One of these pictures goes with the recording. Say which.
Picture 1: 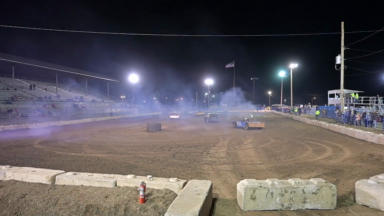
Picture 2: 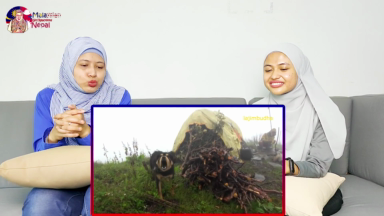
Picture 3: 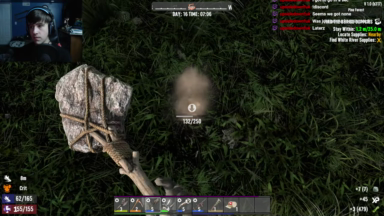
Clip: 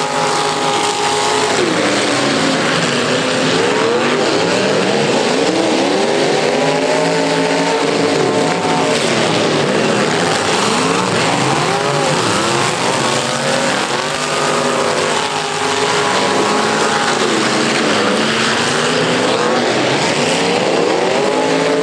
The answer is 1